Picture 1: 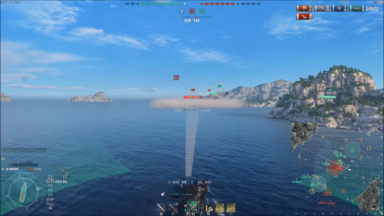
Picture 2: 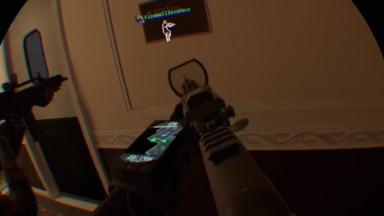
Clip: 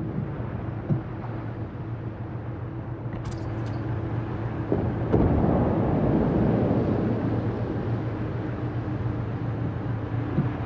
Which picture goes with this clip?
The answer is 1